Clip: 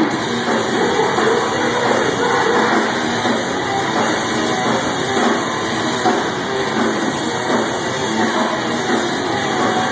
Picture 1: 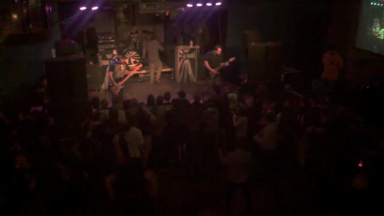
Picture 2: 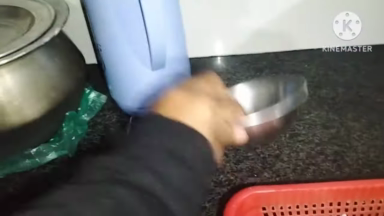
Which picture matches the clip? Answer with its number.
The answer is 1